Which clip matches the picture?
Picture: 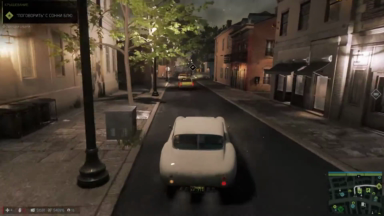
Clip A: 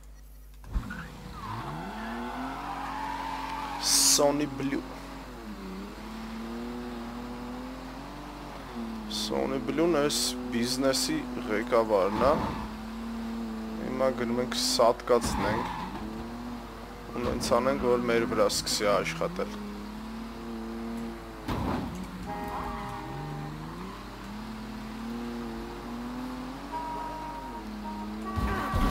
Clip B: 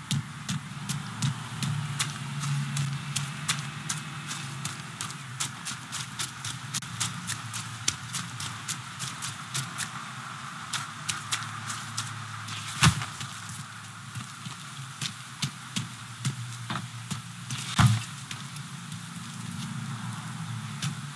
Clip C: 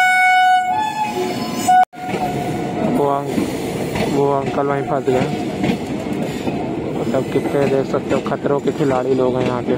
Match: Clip A